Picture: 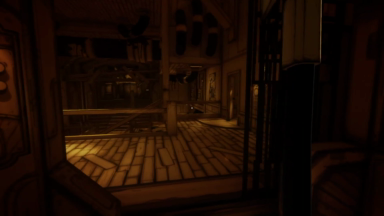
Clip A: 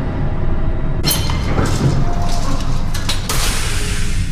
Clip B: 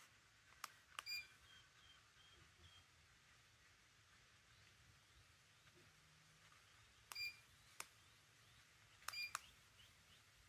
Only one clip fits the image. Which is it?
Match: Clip A